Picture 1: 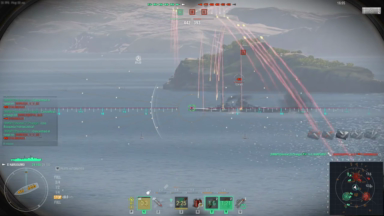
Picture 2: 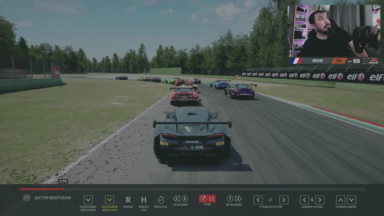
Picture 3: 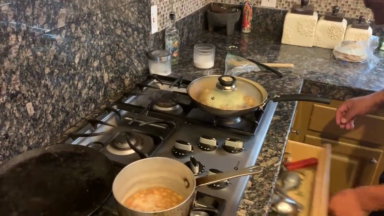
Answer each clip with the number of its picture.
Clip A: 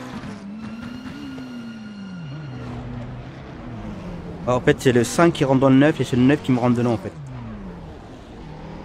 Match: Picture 2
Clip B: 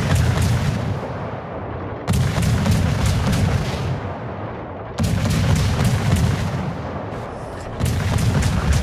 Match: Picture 1